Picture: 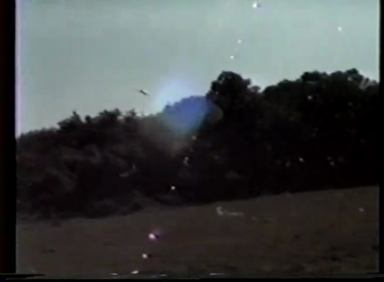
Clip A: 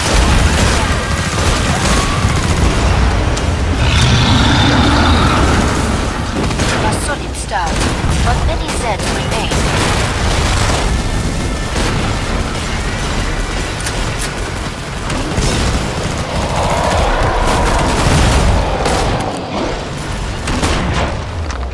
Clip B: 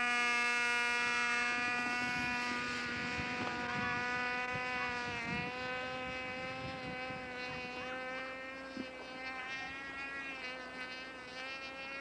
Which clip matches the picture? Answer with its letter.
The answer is B